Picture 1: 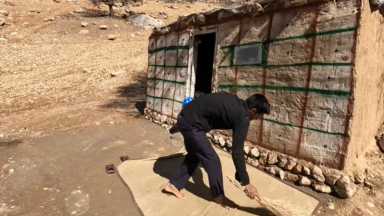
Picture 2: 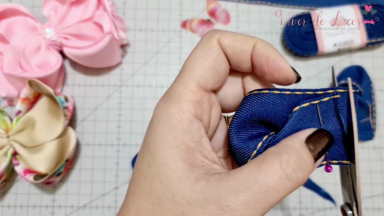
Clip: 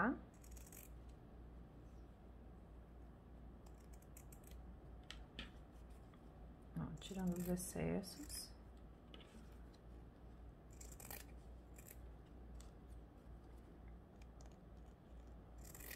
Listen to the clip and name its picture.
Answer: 2